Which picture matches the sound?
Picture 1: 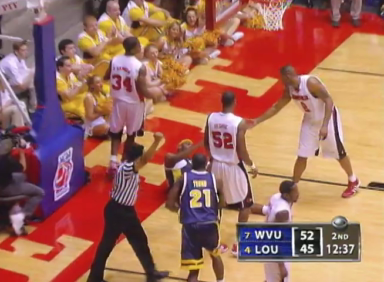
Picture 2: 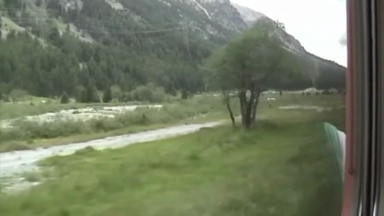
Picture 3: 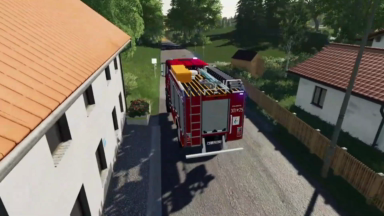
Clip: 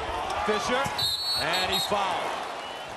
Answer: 1